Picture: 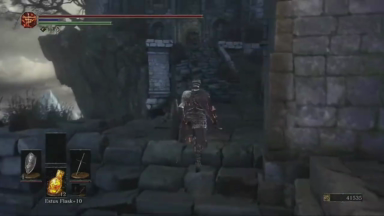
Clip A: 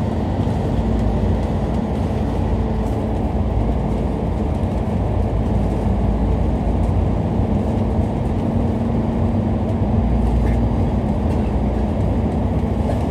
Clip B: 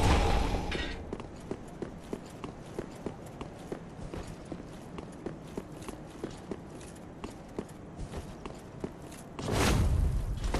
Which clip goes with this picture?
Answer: B